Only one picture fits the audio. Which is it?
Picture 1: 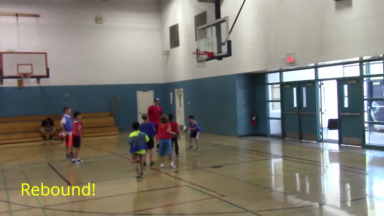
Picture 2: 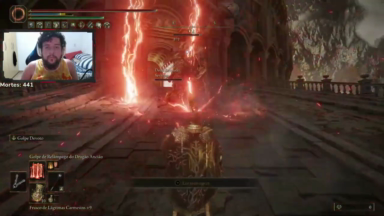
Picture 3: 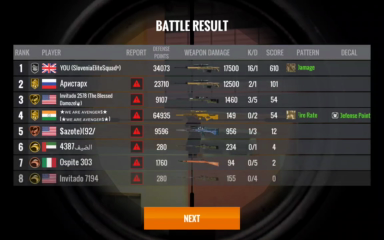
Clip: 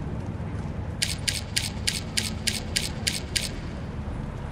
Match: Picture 3